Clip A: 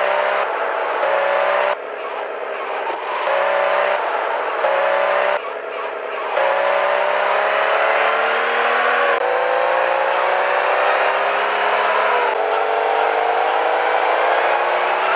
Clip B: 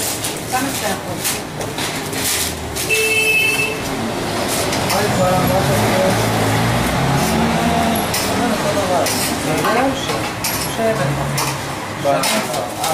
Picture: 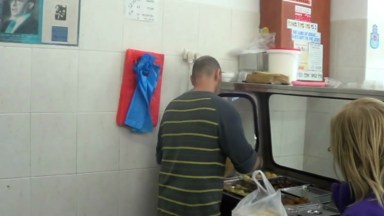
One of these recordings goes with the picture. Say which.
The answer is B